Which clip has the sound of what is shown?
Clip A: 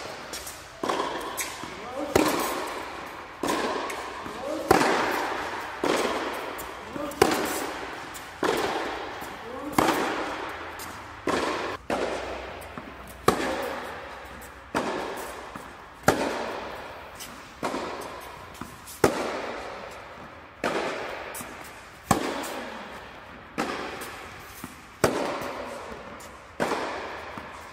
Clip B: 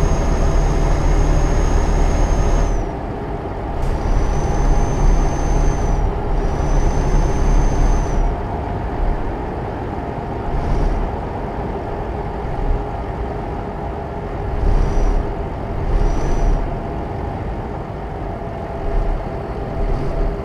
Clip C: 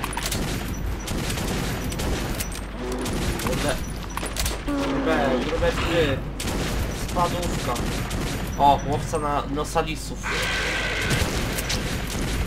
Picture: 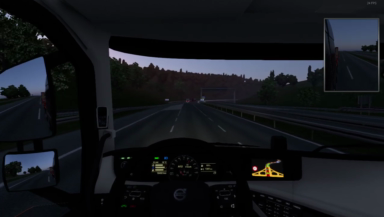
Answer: B